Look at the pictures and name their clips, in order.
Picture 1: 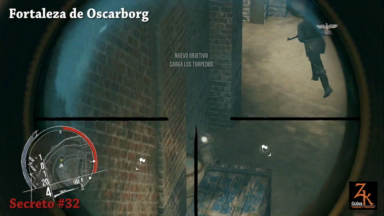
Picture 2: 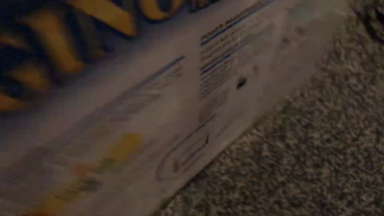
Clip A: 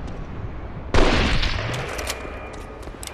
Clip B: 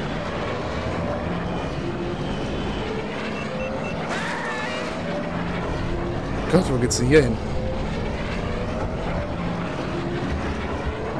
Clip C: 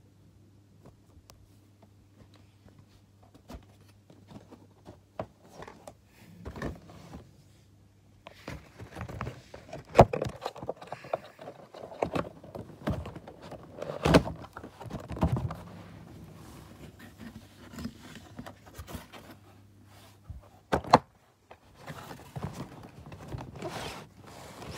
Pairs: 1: A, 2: C